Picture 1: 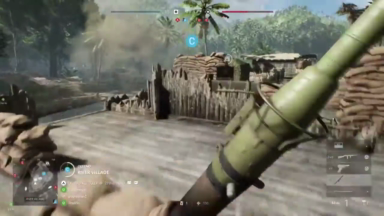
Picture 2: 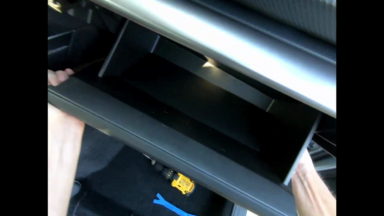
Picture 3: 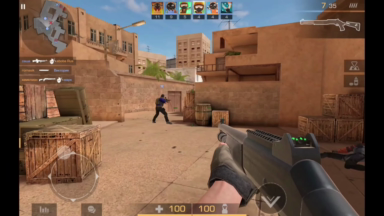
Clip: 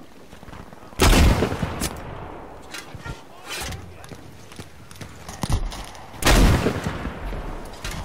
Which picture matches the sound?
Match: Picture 1